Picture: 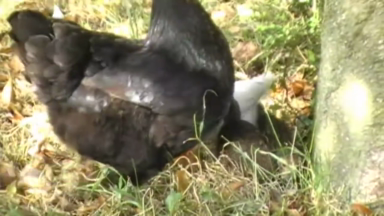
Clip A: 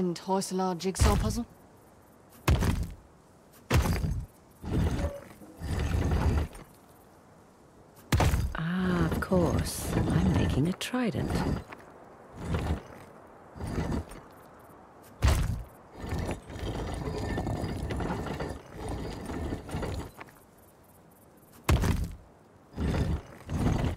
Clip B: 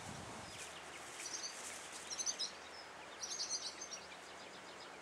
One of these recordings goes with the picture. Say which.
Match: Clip B